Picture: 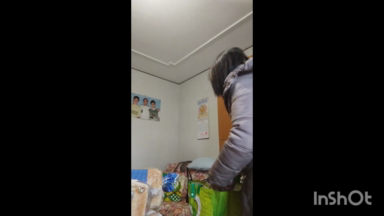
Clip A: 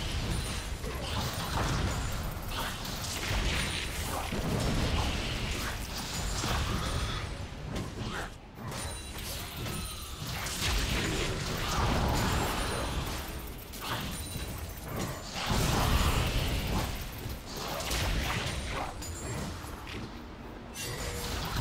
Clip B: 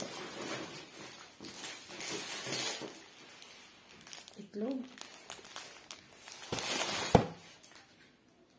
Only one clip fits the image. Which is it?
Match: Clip B